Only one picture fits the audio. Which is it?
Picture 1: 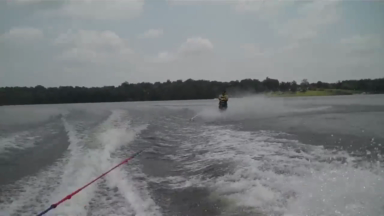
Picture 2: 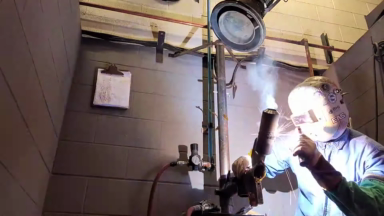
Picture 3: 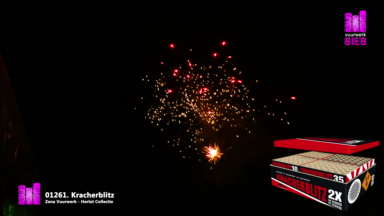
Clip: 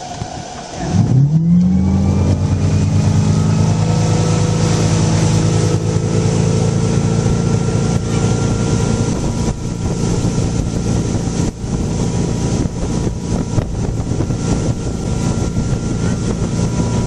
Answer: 1